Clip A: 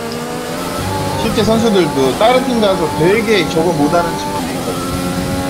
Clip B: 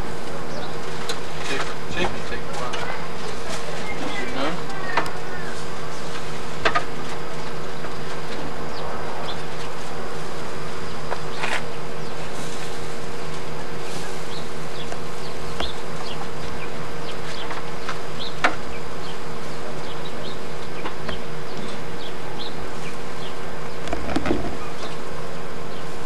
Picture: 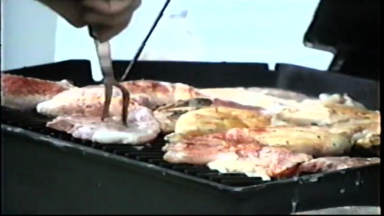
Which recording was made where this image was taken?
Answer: B